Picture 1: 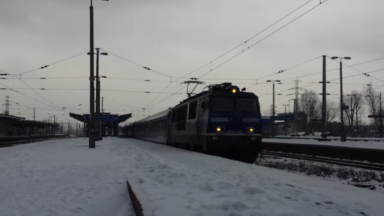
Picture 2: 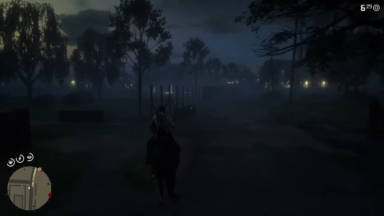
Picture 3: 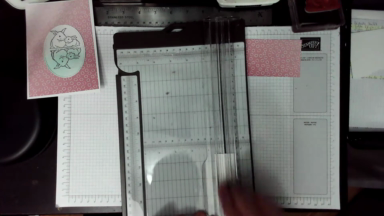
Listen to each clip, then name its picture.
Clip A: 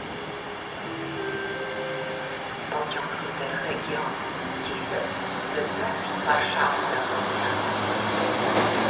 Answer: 1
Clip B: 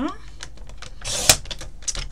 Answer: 3